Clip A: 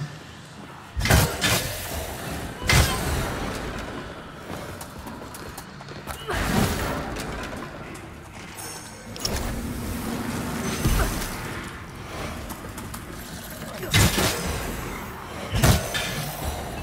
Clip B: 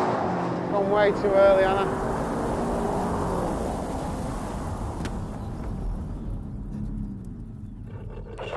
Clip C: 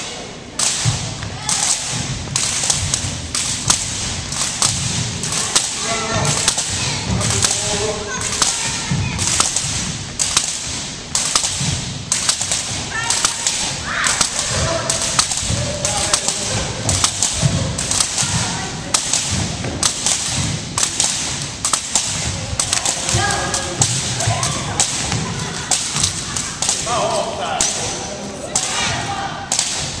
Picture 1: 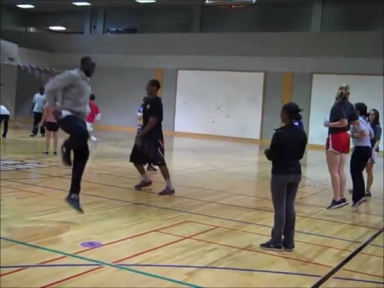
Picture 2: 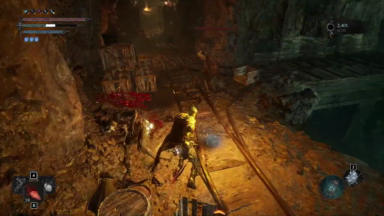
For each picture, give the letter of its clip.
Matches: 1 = C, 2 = A